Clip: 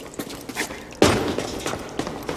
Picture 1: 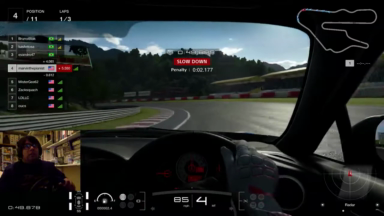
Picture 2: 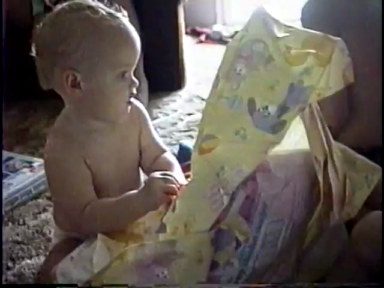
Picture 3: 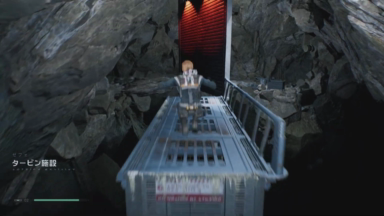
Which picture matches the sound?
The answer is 3